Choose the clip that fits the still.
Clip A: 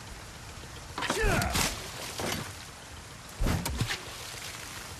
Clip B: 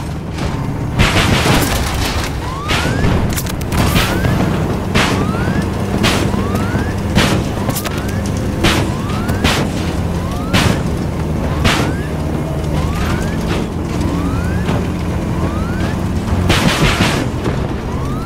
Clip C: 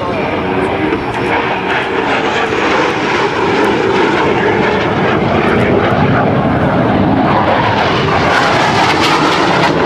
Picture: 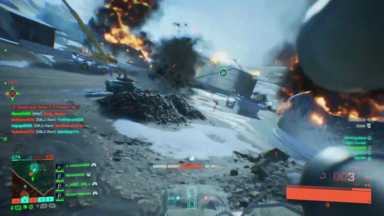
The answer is B